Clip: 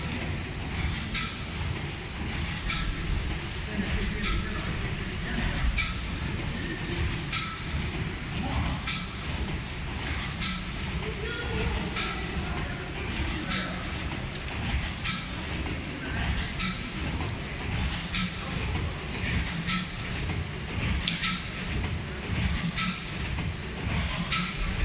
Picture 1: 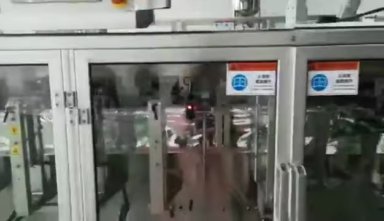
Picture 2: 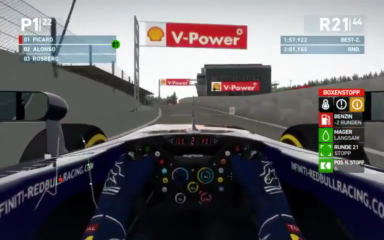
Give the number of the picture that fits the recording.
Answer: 1